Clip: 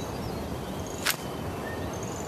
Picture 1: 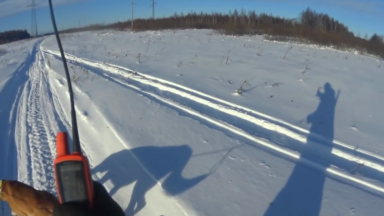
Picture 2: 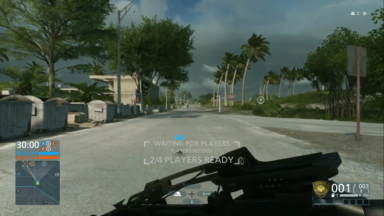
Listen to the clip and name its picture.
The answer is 2